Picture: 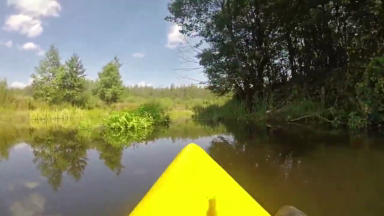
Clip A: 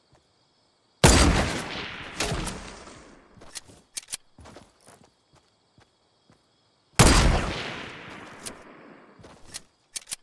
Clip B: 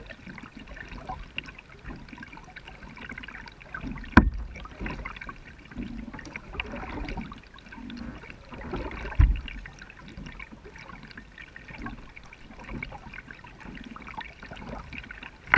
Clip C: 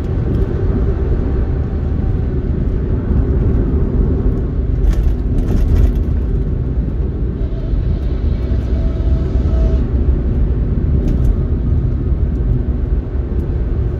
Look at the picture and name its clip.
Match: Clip B